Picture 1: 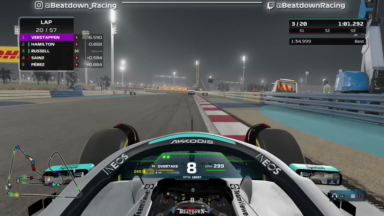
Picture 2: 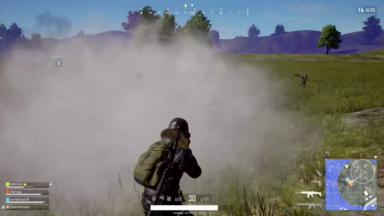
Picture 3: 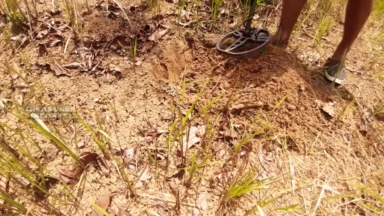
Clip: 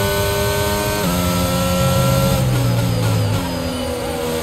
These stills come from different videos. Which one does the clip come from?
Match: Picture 1